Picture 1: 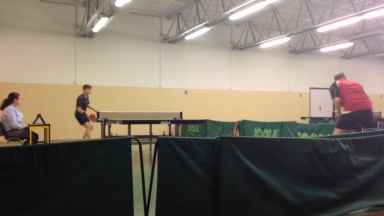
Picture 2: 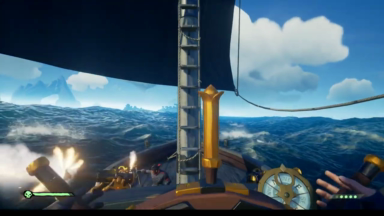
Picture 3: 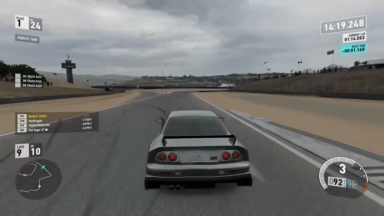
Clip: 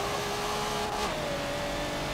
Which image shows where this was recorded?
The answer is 3